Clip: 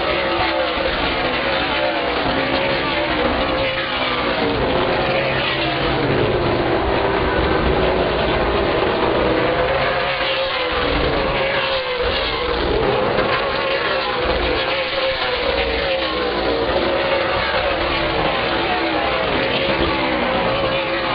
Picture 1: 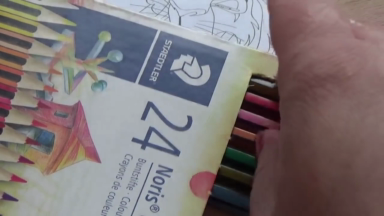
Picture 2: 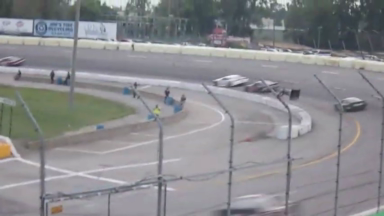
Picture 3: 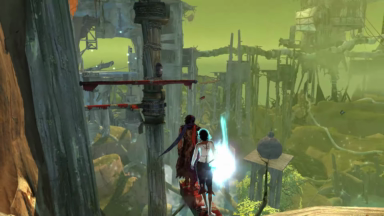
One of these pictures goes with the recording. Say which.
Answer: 2